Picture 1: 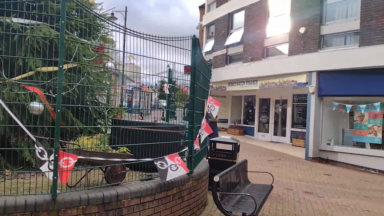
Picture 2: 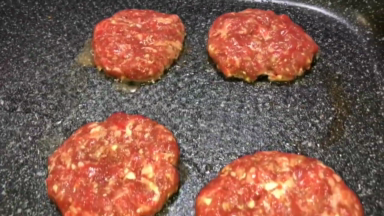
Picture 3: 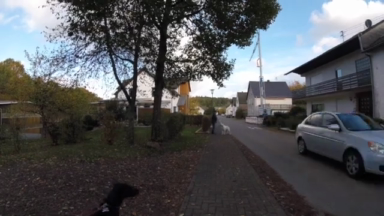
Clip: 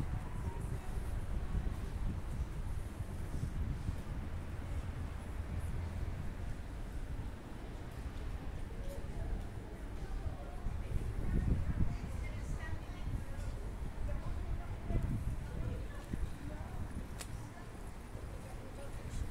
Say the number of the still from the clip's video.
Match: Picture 1